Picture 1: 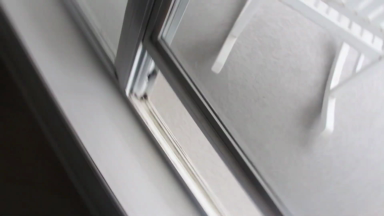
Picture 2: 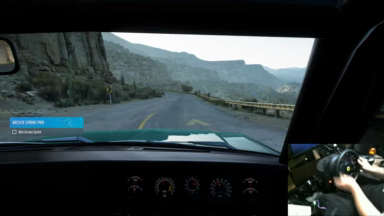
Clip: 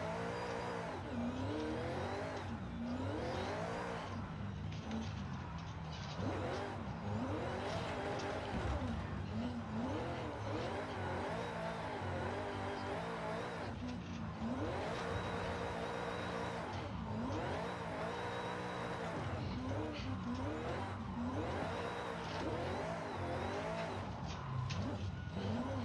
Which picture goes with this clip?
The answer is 2